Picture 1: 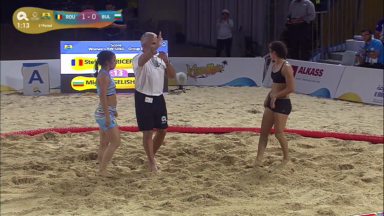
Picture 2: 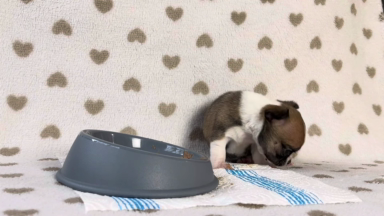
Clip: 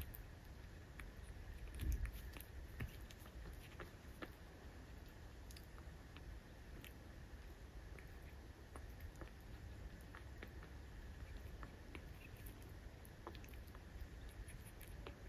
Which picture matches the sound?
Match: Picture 2